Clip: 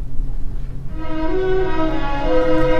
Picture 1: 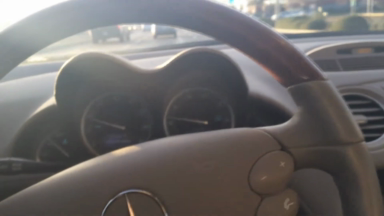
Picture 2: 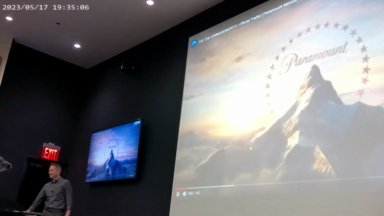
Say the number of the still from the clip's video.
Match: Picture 2